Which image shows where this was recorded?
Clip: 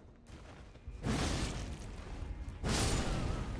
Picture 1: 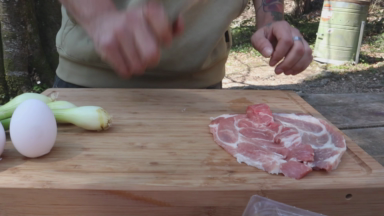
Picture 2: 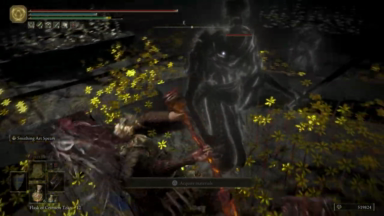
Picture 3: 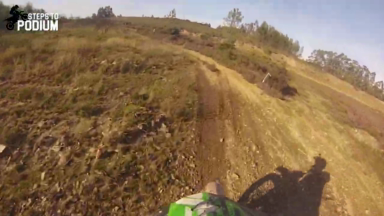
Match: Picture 2